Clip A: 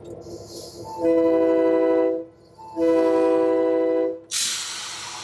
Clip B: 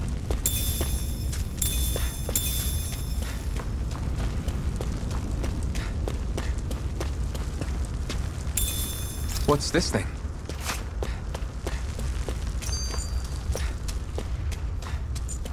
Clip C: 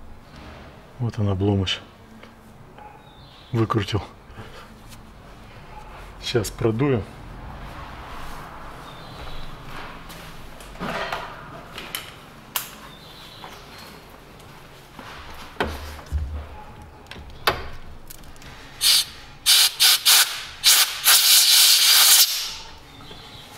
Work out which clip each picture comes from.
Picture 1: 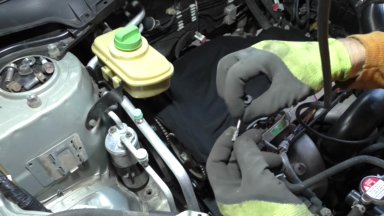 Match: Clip C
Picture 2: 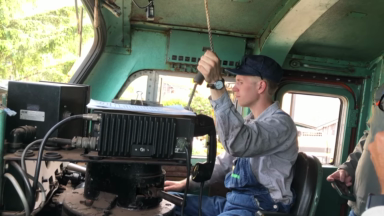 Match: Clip A